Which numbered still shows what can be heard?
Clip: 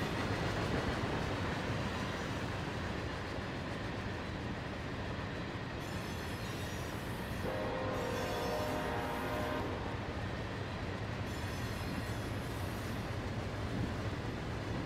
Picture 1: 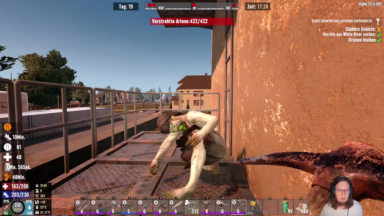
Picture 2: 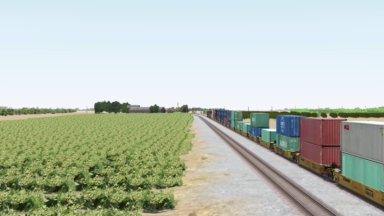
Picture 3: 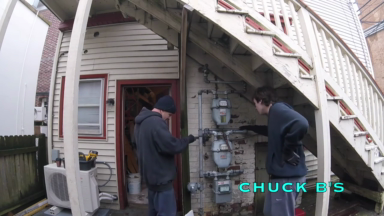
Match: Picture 2